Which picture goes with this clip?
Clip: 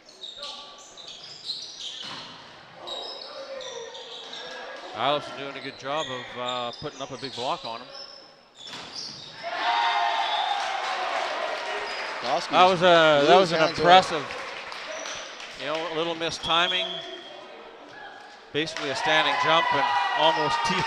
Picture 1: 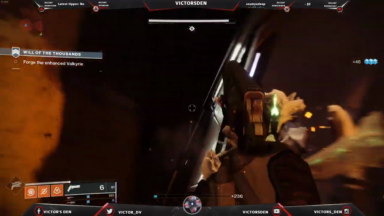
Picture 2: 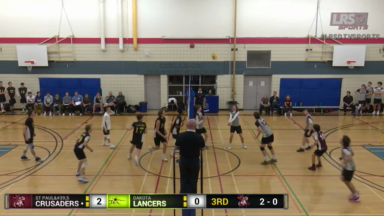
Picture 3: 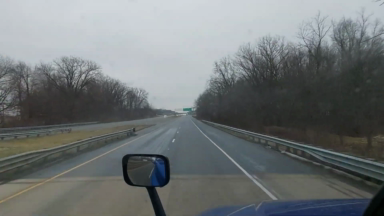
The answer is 2